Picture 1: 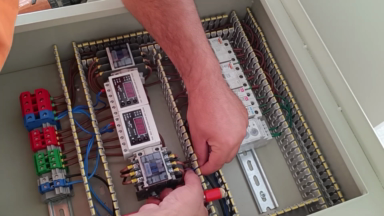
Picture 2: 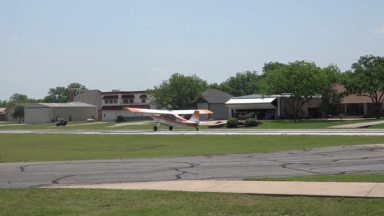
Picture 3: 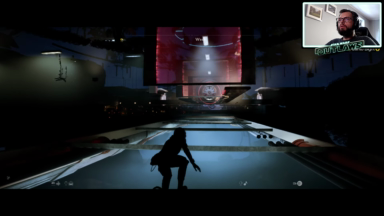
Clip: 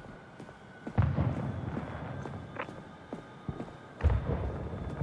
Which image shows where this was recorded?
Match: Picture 3